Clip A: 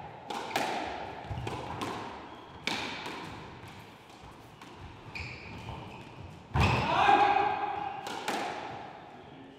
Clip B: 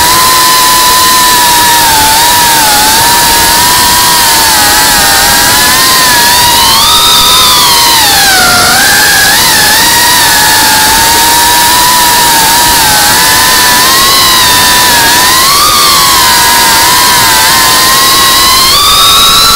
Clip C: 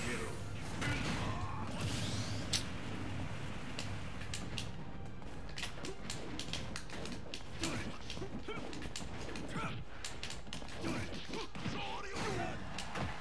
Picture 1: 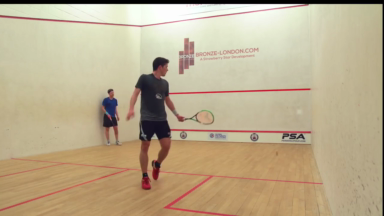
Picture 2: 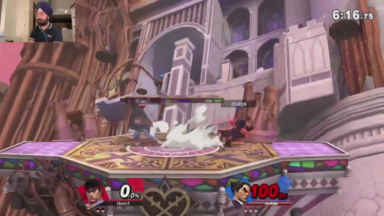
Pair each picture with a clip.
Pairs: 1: A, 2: C